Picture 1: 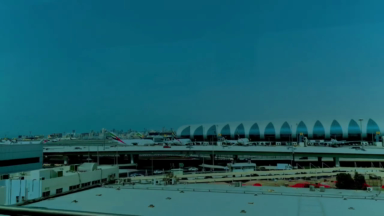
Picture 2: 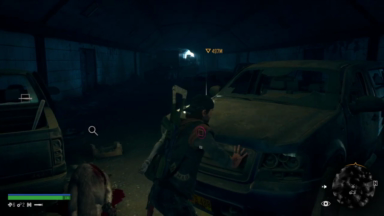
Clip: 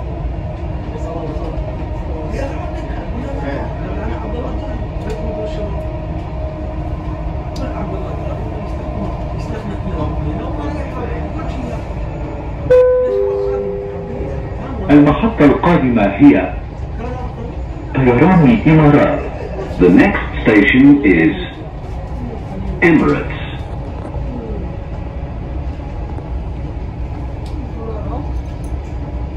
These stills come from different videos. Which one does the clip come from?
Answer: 1